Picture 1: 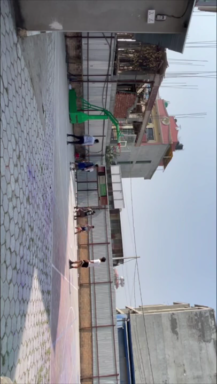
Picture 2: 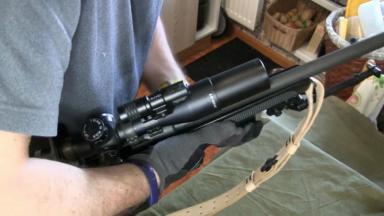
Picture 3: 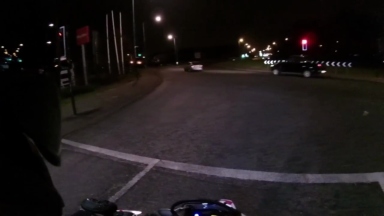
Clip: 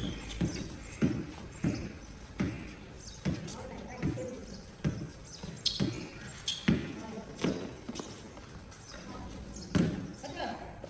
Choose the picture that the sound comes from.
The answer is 1